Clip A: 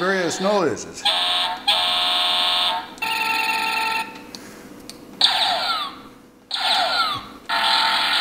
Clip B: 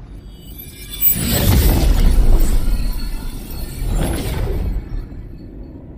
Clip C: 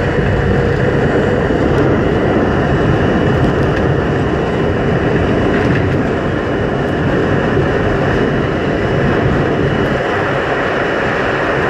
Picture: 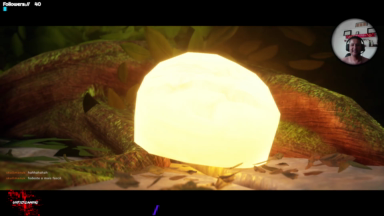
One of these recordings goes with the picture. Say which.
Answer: B